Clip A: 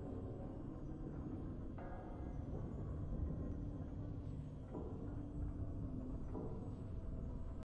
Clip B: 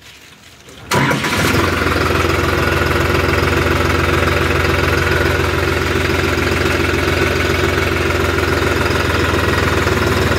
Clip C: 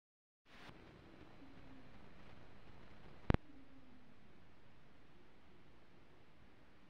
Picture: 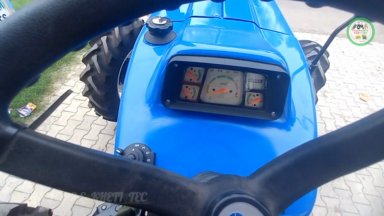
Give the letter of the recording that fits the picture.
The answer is B